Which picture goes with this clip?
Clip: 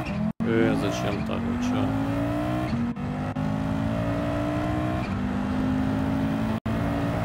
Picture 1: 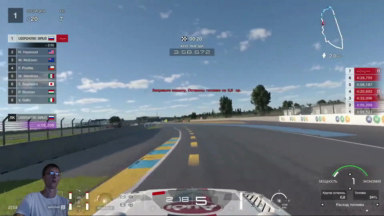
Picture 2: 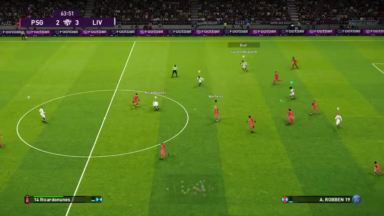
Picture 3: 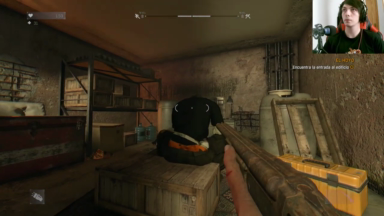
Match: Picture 1